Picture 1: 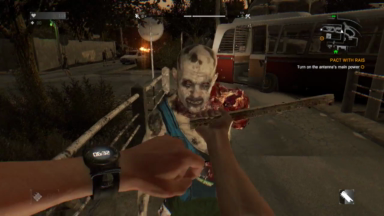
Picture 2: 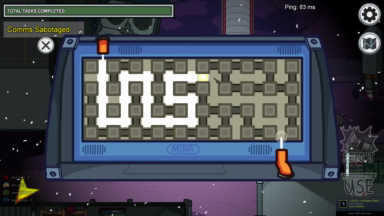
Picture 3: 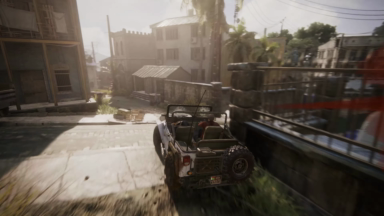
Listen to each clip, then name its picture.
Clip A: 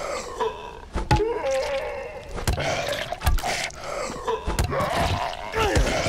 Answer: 1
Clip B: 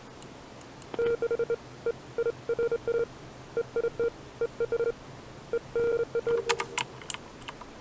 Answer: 2